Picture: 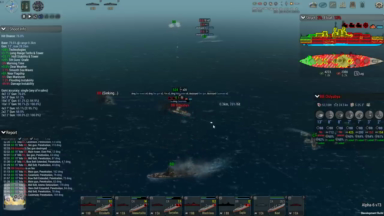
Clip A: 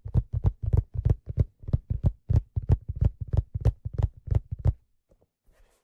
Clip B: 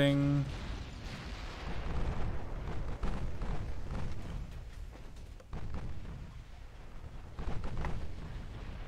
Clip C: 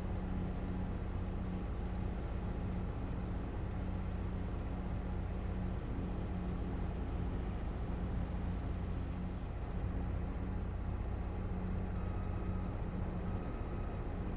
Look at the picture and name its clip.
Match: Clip B